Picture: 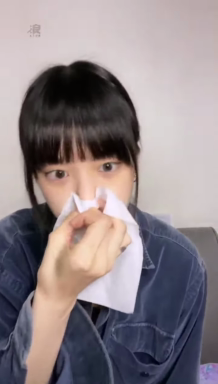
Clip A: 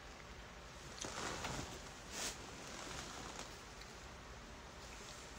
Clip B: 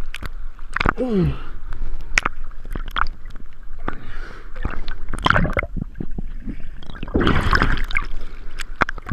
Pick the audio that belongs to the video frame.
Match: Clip A